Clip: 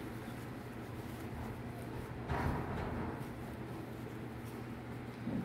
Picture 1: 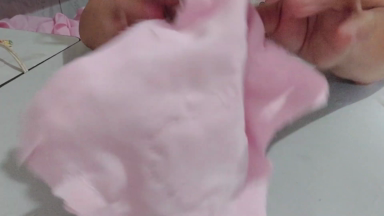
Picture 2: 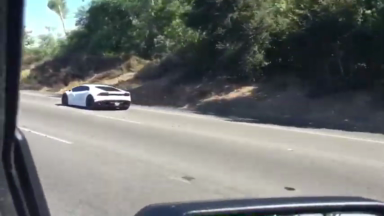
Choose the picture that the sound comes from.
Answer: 1